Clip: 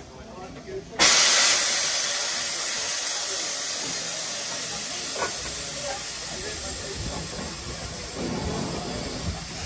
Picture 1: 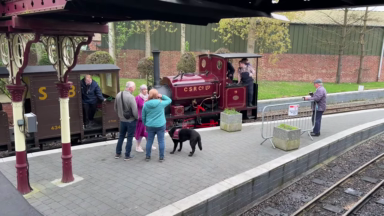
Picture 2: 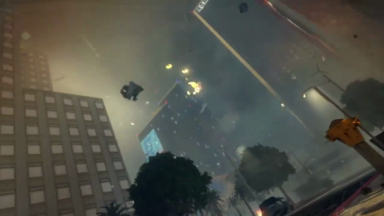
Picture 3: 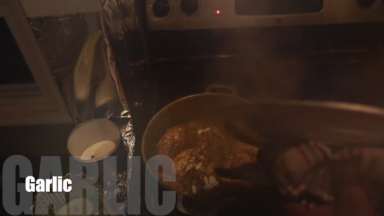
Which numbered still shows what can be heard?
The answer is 1